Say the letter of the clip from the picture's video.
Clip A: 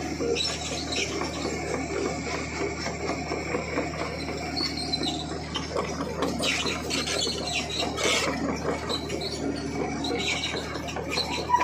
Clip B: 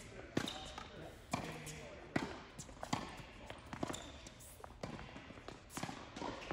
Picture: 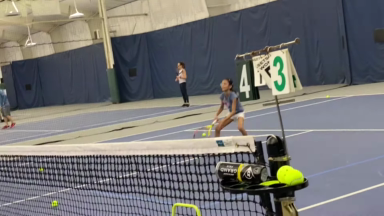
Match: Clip B